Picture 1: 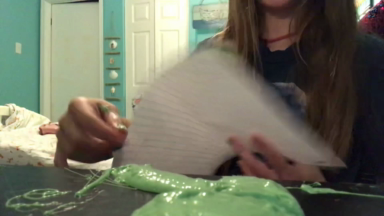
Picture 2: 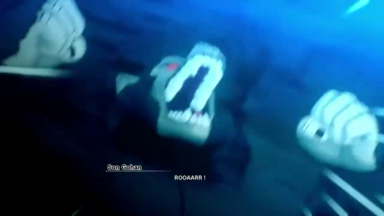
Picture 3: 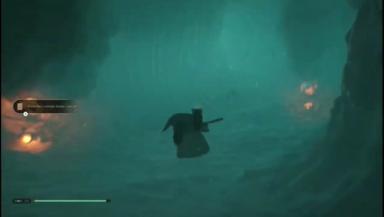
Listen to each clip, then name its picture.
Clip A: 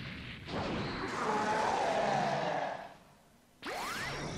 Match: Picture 2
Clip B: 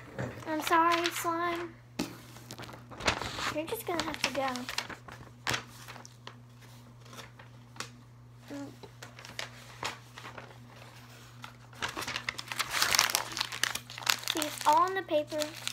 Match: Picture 1